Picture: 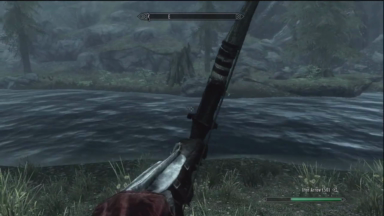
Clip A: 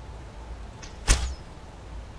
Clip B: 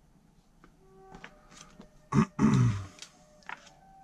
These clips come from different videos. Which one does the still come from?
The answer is A